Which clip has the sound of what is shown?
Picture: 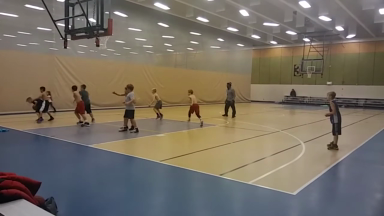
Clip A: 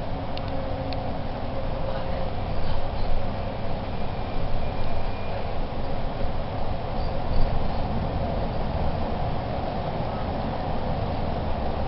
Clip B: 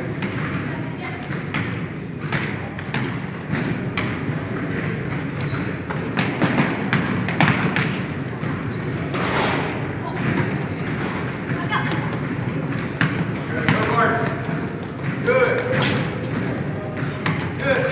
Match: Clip B